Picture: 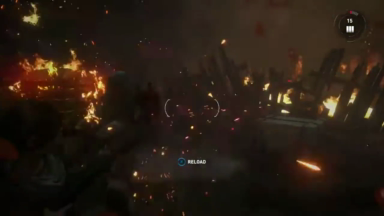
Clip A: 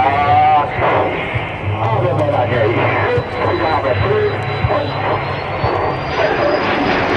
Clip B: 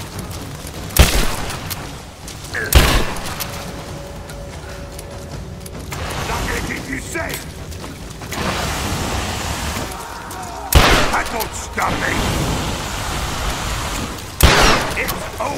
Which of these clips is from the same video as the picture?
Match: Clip B